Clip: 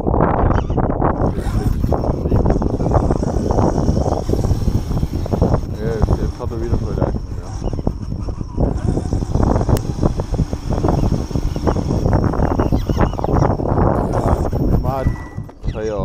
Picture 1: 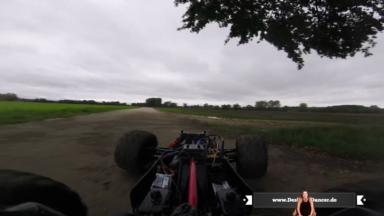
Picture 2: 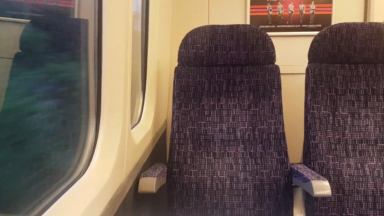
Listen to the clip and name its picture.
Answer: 1